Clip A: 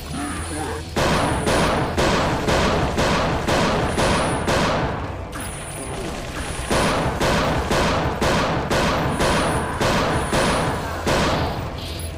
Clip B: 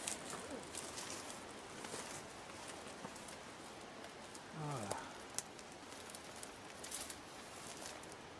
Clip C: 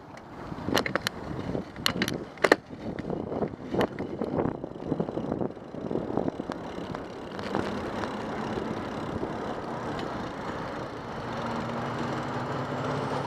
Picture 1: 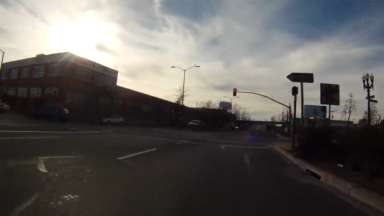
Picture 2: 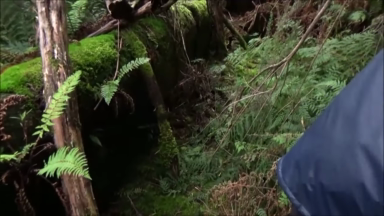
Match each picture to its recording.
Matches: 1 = C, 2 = B